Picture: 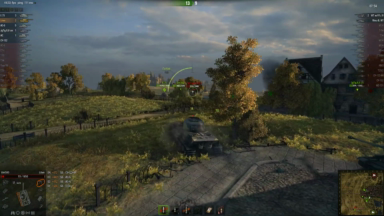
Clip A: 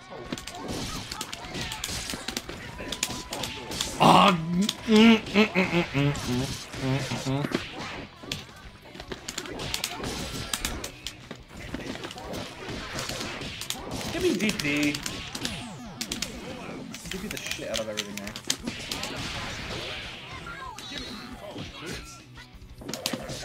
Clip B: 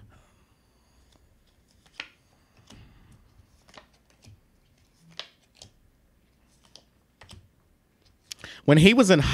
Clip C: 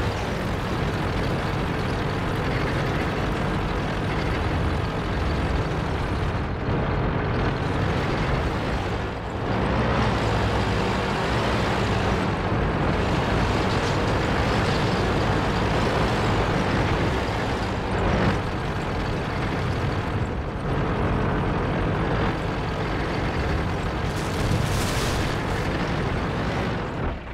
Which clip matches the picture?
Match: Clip C